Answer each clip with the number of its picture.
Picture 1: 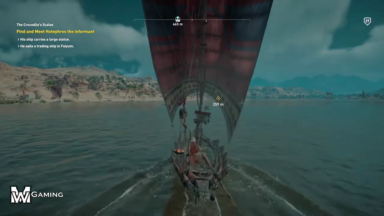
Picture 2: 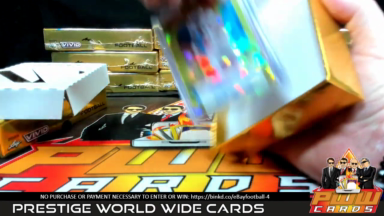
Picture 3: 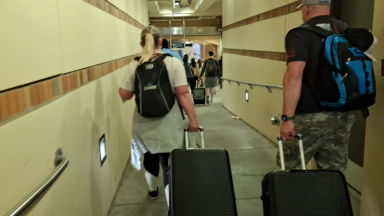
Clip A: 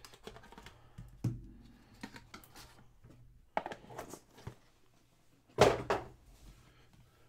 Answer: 2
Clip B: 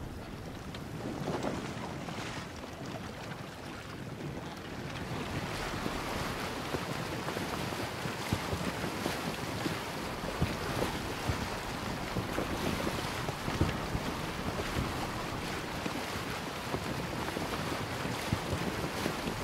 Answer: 1